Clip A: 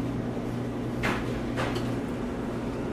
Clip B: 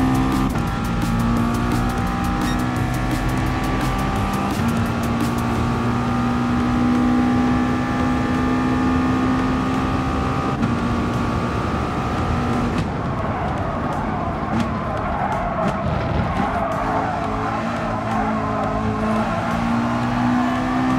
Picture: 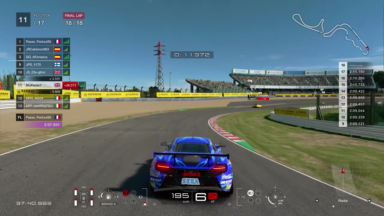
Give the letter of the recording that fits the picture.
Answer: B